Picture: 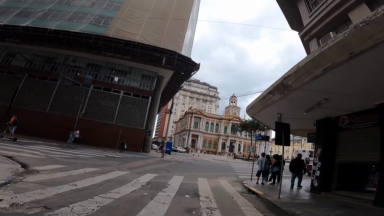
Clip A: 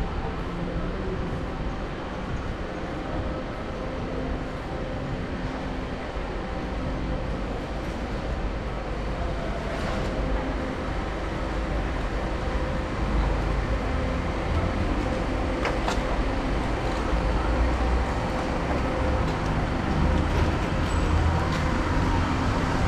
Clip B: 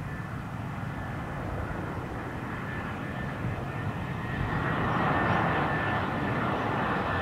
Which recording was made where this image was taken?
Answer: A